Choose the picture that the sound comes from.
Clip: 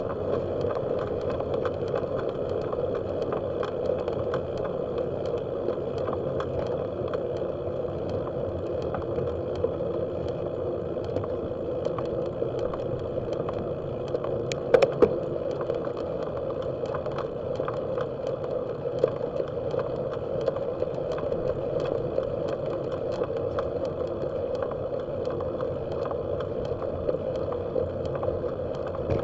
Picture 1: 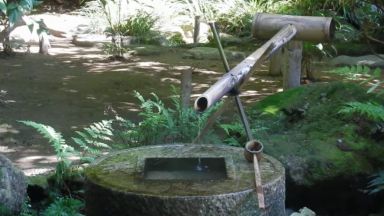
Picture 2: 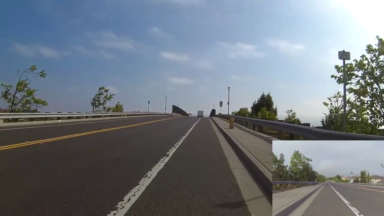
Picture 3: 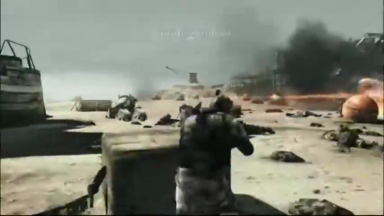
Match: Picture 2